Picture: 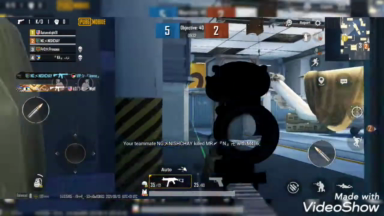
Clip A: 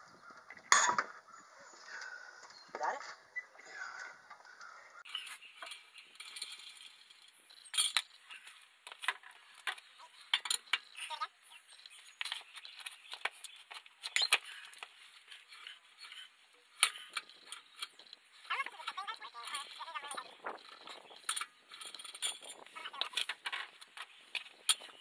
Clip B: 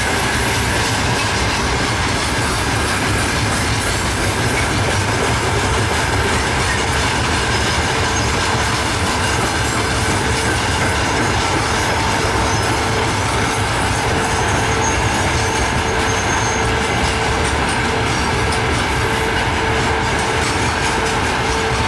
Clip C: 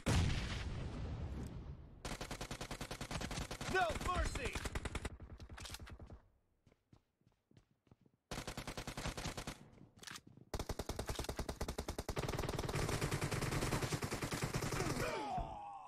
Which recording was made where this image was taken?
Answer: C